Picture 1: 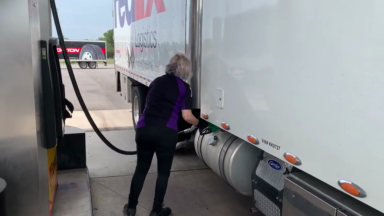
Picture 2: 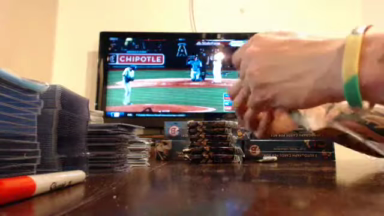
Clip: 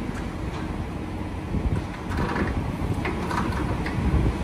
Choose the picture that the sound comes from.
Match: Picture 1